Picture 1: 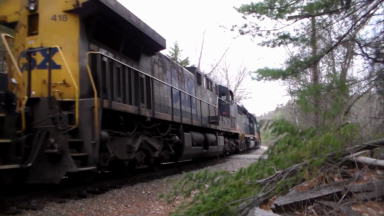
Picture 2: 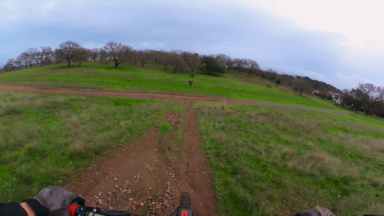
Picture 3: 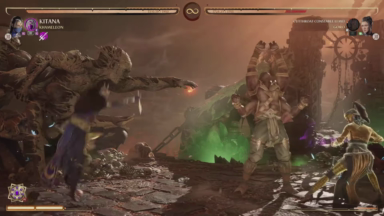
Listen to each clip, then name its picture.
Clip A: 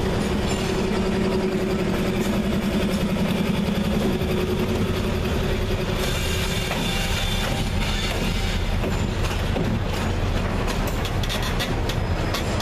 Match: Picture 1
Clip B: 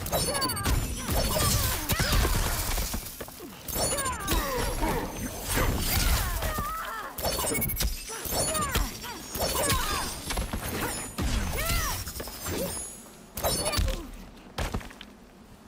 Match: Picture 3